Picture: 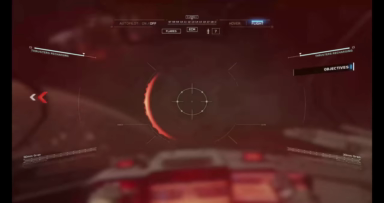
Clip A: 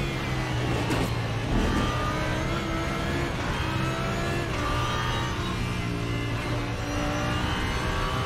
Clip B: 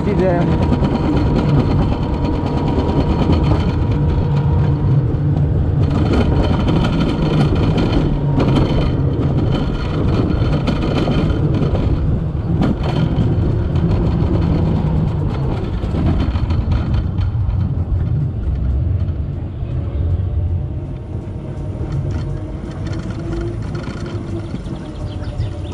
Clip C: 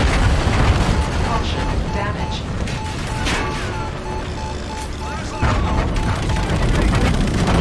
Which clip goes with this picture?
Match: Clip C